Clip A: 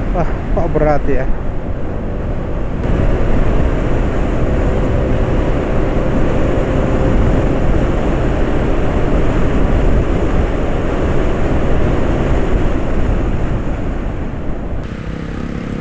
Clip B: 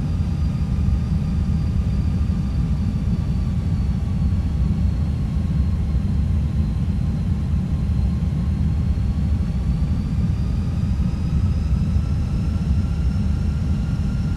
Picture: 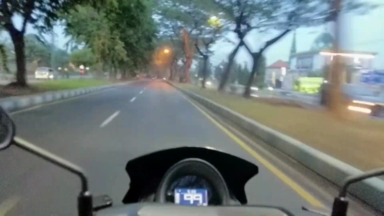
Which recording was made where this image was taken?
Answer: A